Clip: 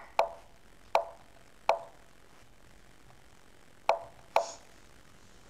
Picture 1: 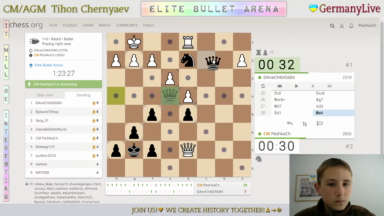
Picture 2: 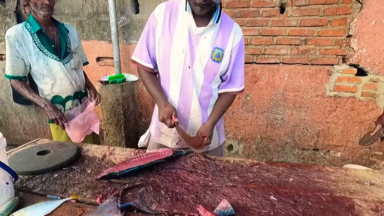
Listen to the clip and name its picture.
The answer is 1